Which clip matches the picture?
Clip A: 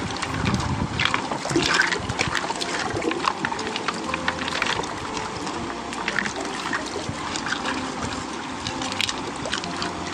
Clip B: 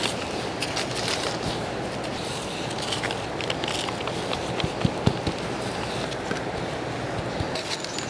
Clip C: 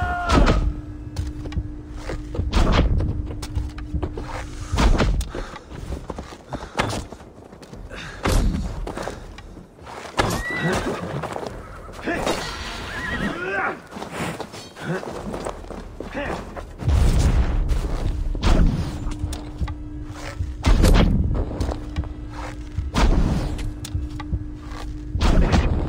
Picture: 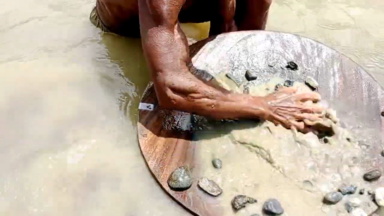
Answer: A